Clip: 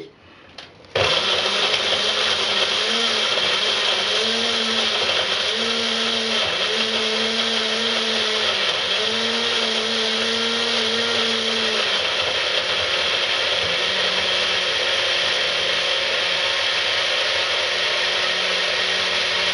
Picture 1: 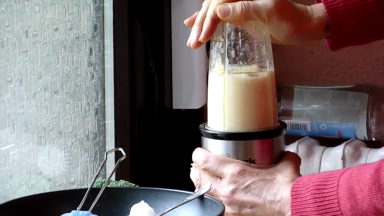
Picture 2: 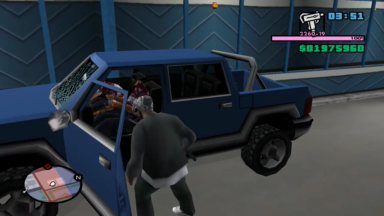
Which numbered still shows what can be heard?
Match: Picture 1